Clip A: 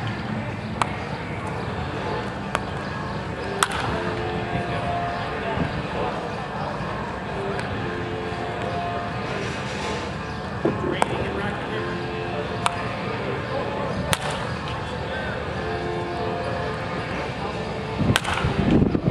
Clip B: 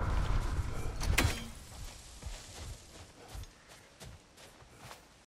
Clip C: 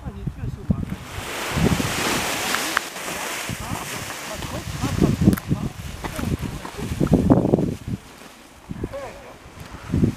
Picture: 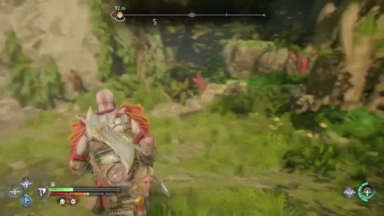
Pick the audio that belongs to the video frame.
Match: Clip B